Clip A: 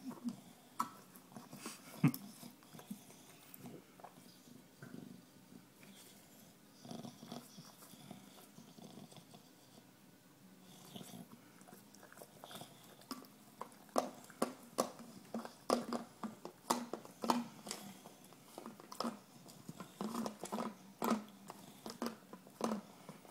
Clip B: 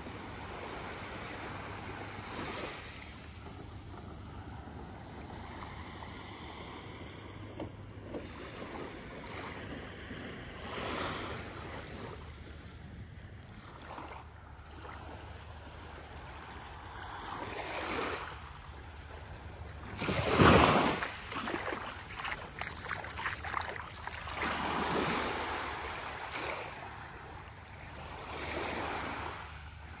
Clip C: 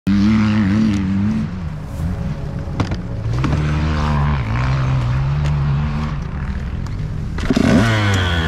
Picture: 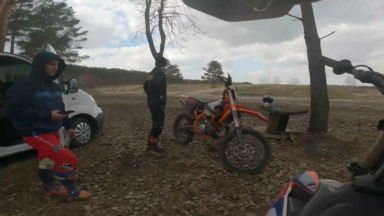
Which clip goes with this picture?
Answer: C